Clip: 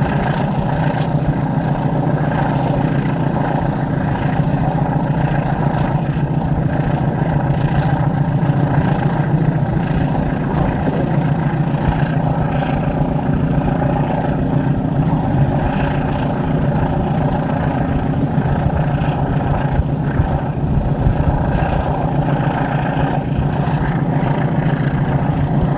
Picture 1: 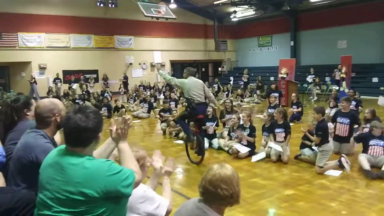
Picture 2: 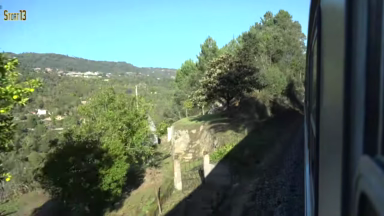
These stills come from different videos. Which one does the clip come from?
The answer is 2